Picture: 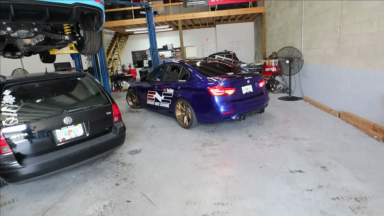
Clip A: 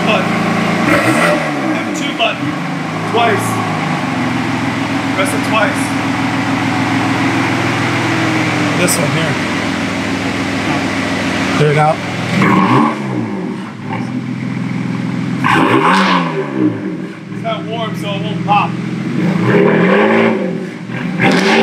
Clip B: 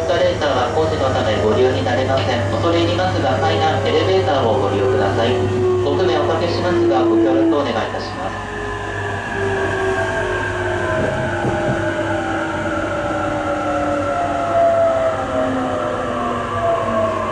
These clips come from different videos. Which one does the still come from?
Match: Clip A